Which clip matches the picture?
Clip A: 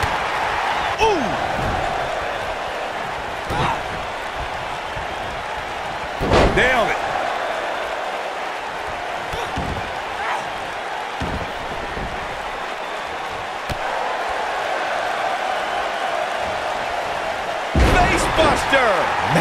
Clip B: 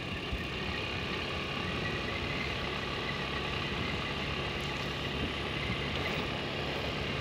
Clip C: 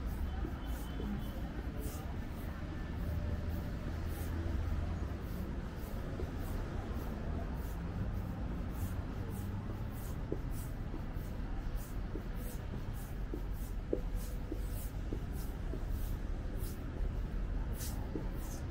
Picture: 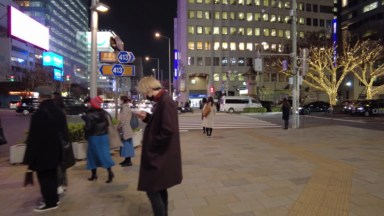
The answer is C